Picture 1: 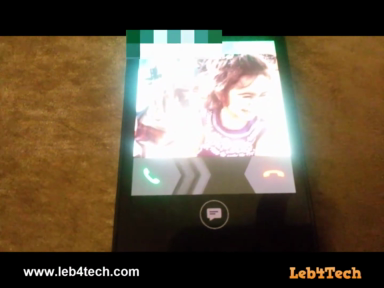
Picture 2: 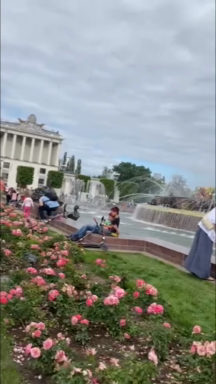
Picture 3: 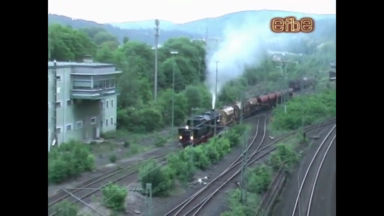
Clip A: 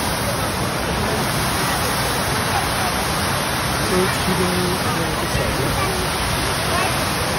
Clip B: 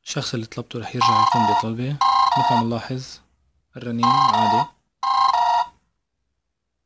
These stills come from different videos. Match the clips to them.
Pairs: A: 2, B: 1